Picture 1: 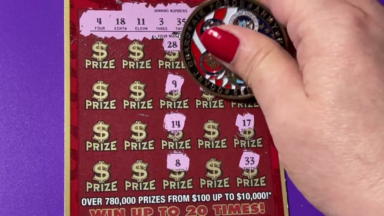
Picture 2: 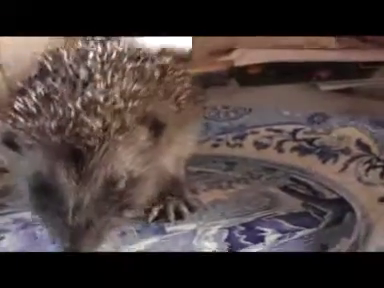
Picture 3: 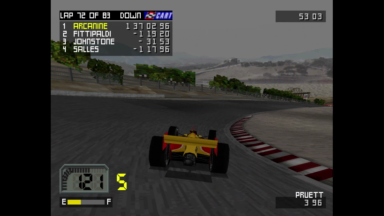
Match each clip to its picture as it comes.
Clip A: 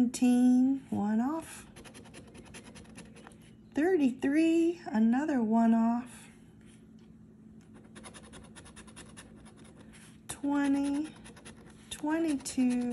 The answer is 1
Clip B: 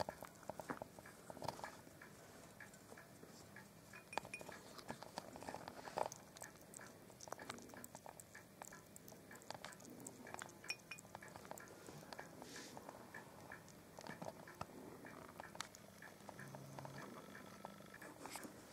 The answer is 2